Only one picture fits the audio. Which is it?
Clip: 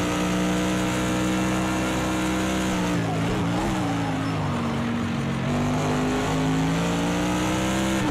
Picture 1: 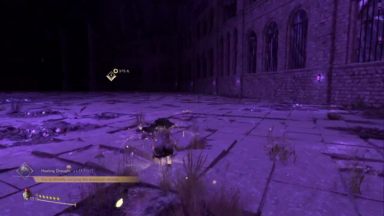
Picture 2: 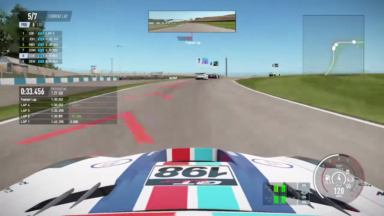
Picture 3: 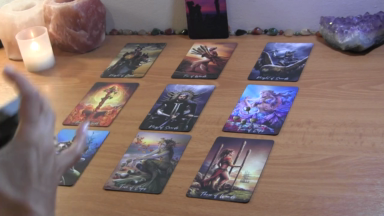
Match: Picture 2